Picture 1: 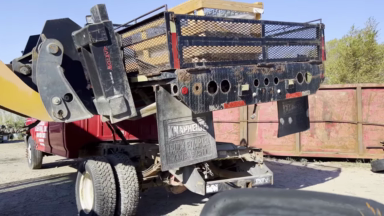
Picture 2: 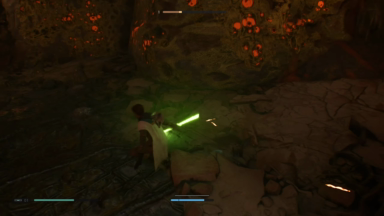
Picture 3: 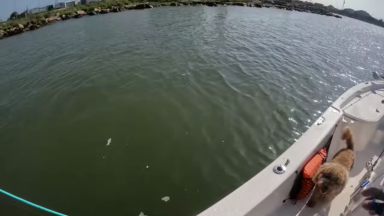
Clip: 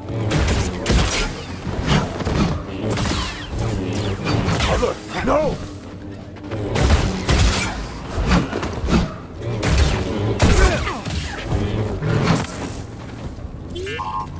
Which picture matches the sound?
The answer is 2